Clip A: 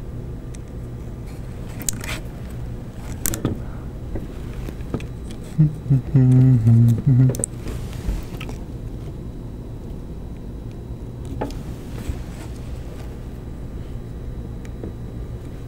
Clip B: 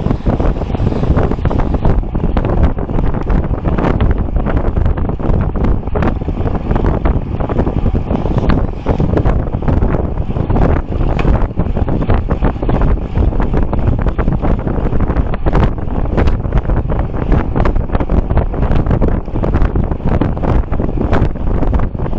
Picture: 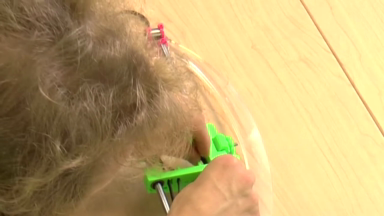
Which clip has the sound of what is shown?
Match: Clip A